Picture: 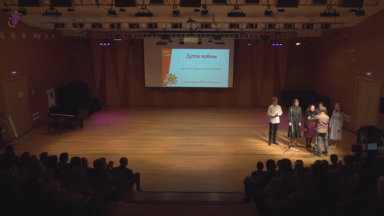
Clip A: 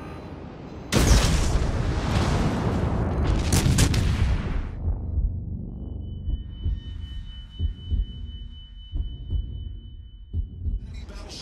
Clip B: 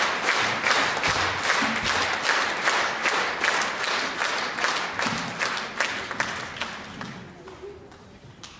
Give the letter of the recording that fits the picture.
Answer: B